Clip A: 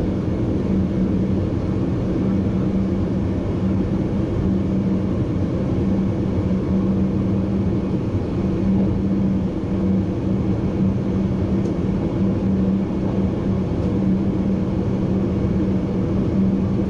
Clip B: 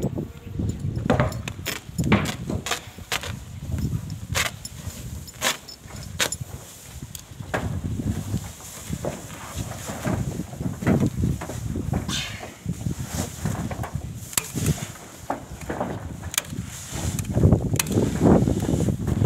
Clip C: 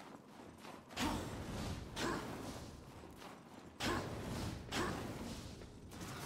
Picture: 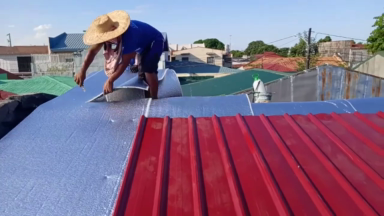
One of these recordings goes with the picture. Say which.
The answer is B